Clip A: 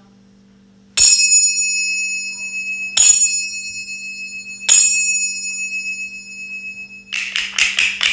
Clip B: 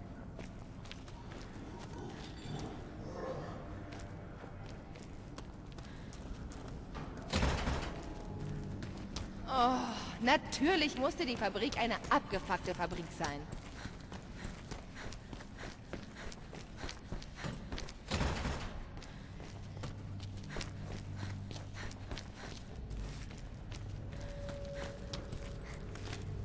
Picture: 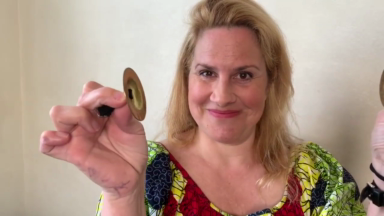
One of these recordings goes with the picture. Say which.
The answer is A